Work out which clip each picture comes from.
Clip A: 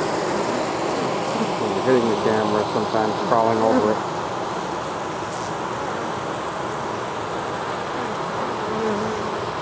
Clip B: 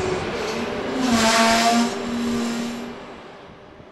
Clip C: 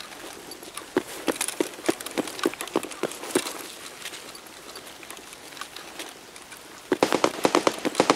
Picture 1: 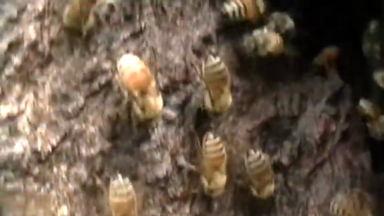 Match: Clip A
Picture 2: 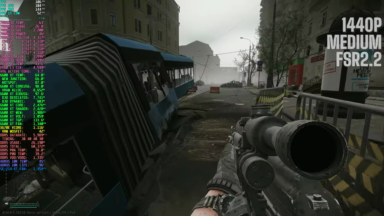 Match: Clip C